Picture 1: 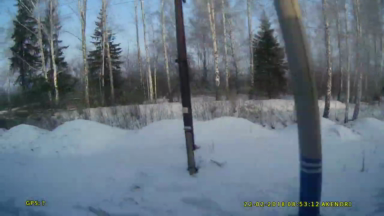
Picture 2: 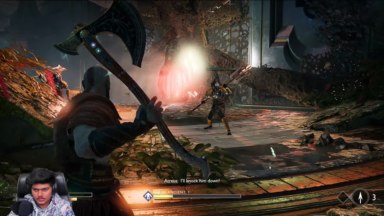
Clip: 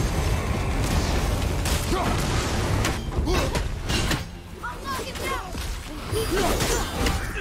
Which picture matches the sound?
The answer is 2